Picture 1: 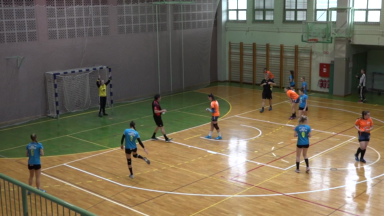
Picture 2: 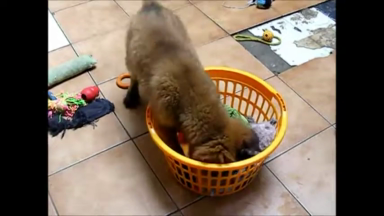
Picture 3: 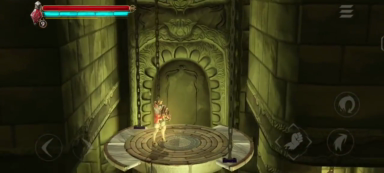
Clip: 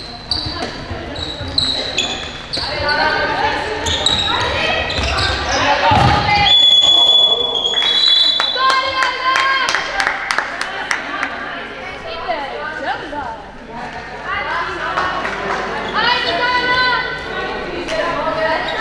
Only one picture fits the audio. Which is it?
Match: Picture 1